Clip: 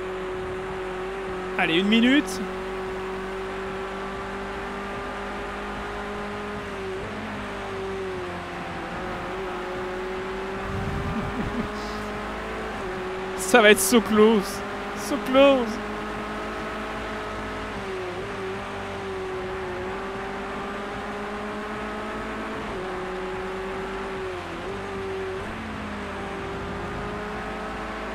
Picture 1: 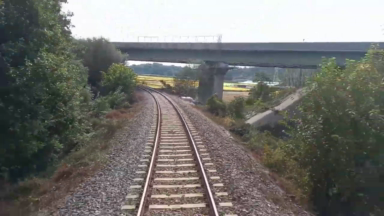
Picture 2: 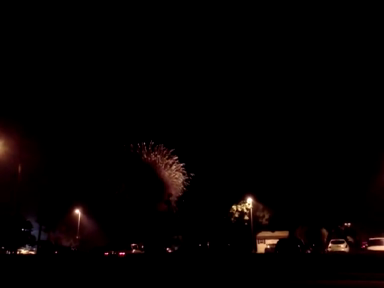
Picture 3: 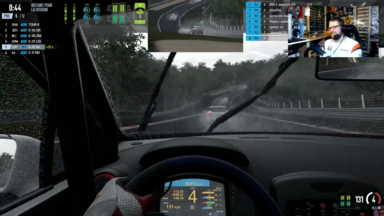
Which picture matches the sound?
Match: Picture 3